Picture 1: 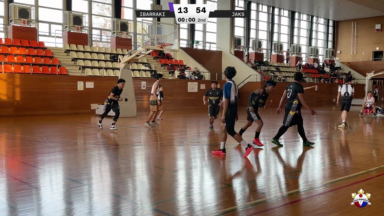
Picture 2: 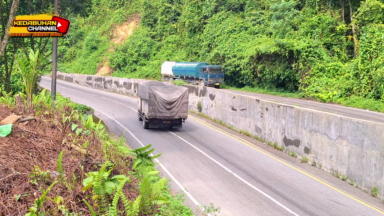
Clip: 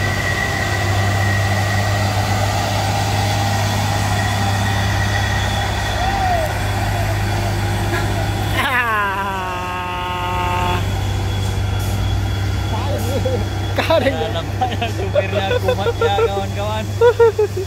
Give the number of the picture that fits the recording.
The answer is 2